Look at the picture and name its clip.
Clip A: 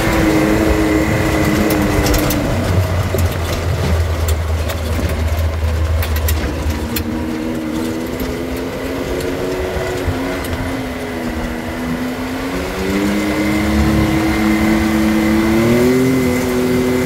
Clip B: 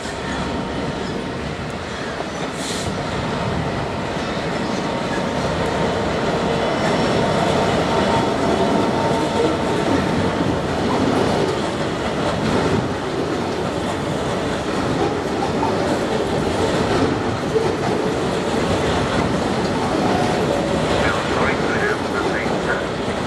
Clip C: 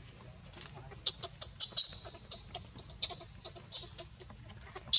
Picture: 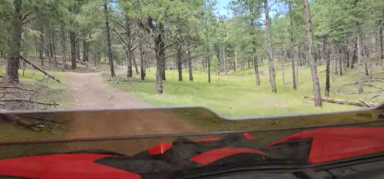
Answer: A